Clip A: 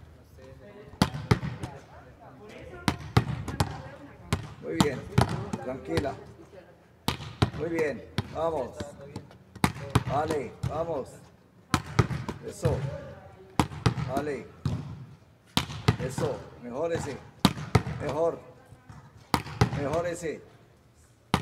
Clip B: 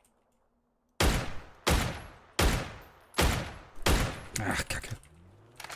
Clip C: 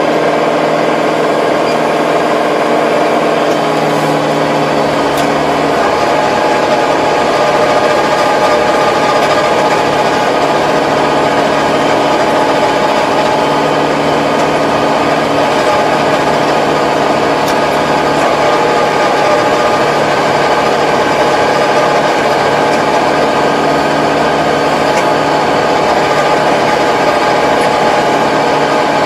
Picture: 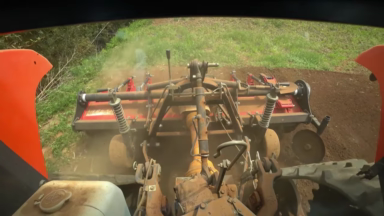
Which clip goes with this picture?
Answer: C